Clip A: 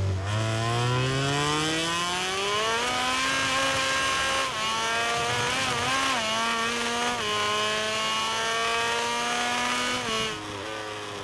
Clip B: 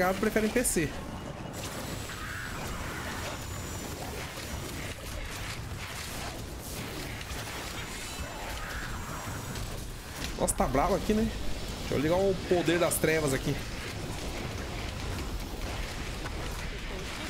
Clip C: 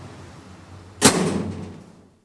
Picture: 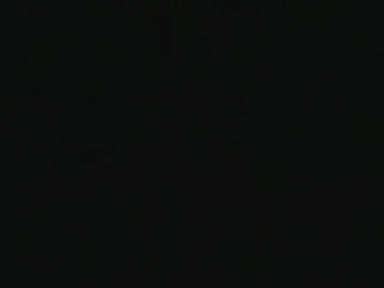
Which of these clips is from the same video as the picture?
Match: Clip C